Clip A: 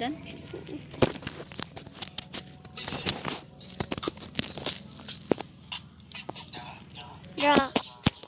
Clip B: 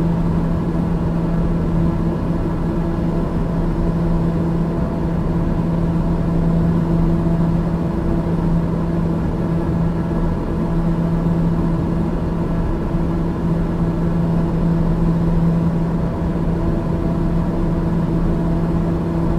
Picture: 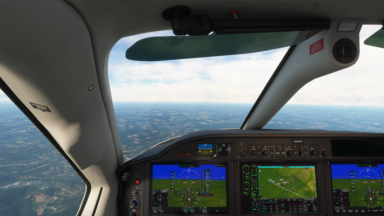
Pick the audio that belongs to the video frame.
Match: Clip B